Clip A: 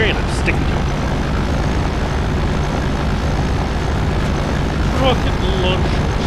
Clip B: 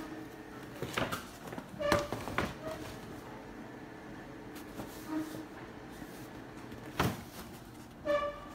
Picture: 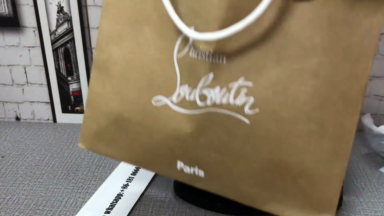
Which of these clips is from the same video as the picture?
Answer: B